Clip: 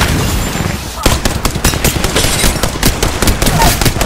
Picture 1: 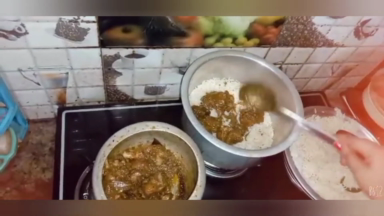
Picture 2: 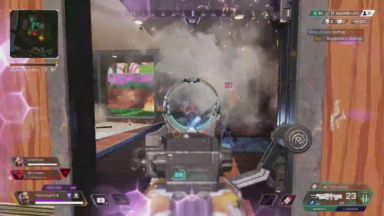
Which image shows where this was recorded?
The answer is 2